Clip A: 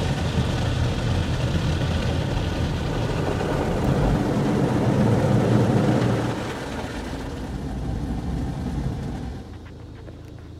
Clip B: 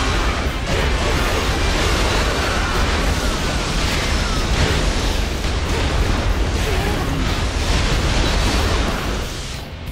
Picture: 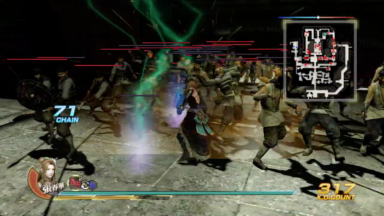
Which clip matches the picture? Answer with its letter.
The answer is B